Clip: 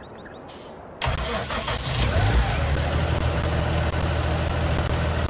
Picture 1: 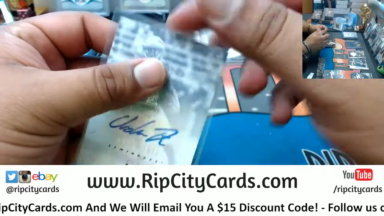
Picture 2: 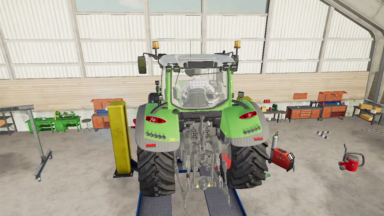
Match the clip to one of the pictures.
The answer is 2